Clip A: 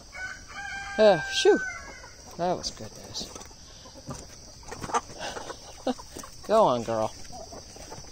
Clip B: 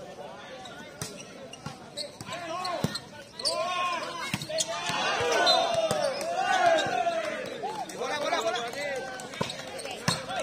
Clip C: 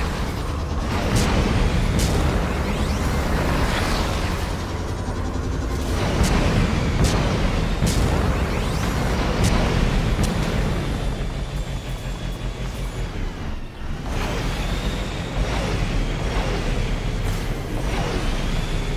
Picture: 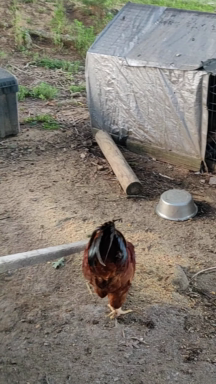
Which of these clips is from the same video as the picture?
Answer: A